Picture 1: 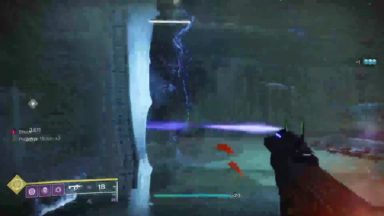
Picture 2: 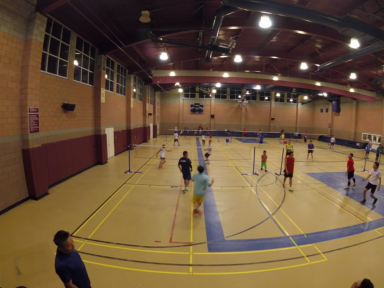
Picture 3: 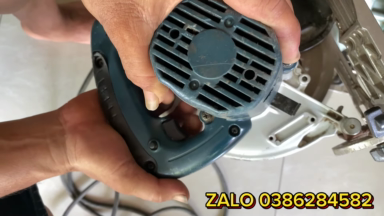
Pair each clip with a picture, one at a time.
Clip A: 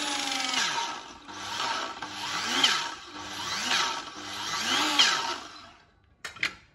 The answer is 3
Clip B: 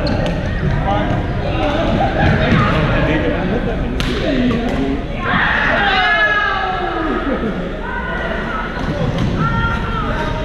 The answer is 2